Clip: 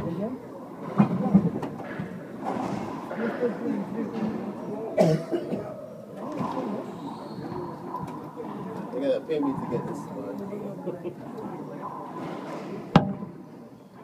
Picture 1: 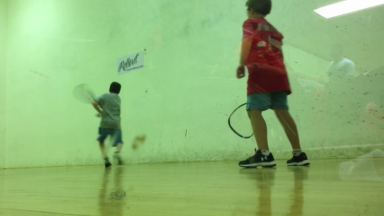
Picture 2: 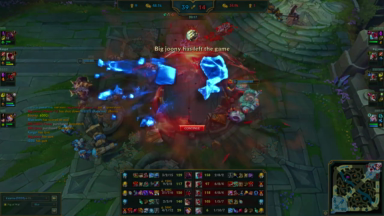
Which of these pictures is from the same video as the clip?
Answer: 1